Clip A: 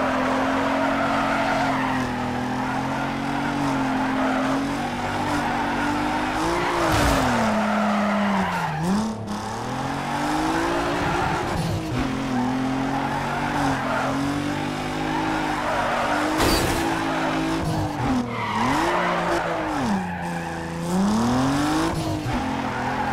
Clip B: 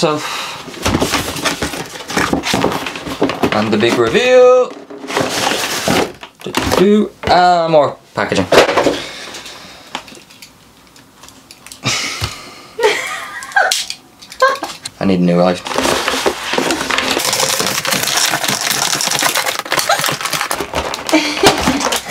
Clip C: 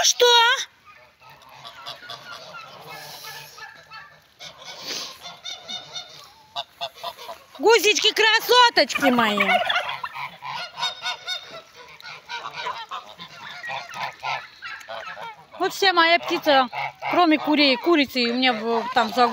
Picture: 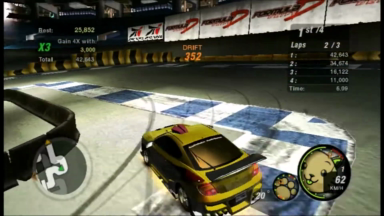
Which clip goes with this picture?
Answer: A